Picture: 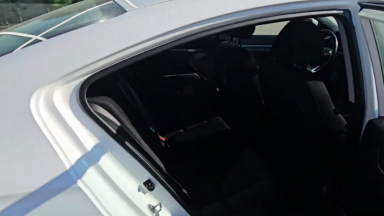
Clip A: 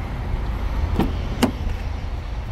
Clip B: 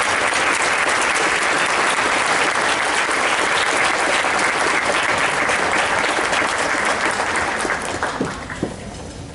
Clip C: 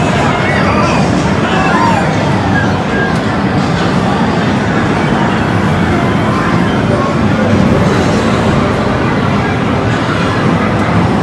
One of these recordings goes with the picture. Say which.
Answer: A